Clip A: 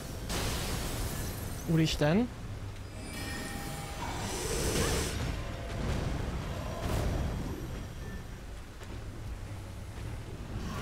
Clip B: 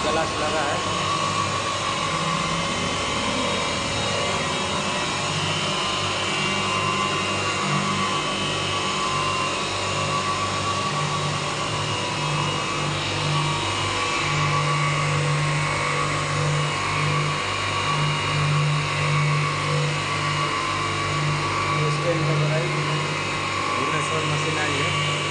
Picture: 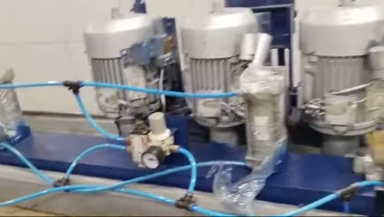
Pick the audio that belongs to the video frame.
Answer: B